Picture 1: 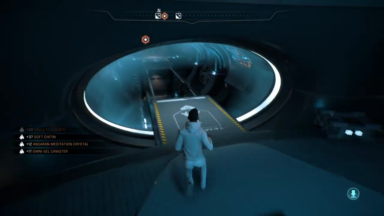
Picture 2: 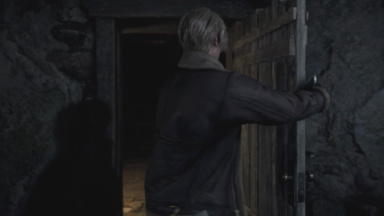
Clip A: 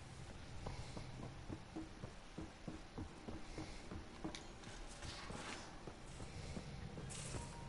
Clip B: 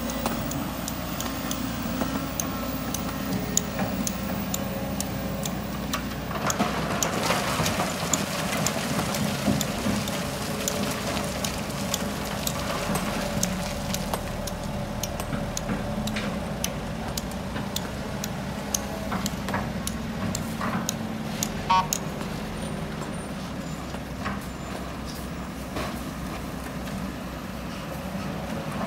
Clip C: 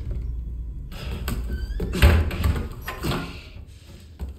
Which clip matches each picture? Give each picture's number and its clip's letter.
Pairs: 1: A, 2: C